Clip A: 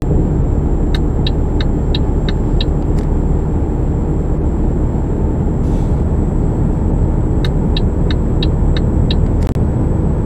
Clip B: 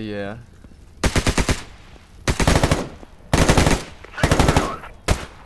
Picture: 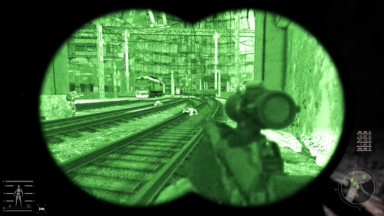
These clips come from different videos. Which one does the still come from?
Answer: B